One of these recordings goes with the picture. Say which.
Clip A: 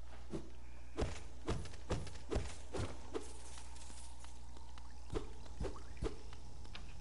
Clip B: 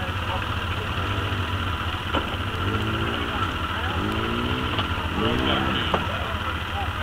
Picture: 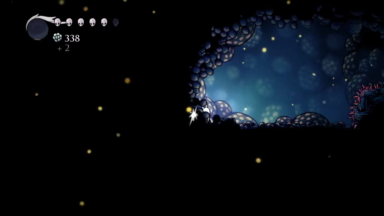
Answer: A